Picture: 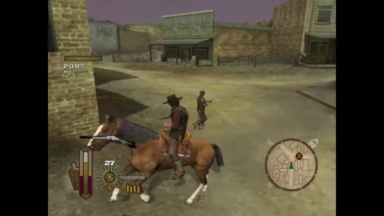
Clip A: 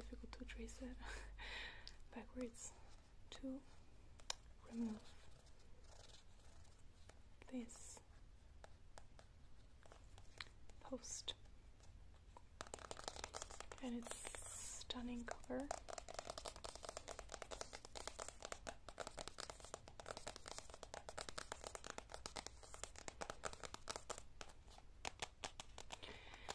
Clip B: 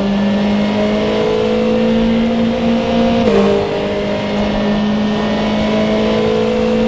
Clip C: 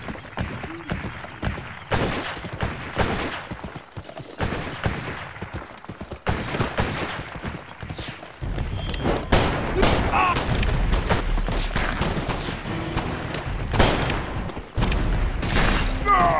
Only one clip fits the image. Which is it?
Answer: C